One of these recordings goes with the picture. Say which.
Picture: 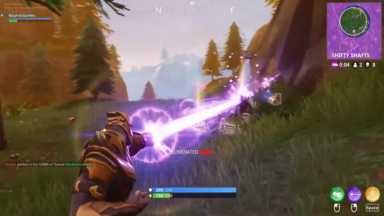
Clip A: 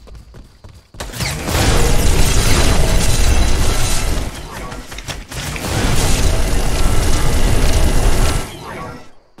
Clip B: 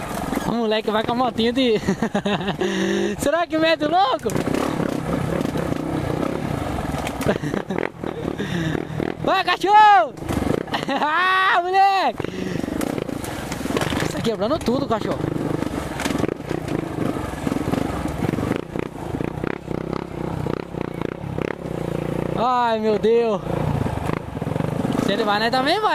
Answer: A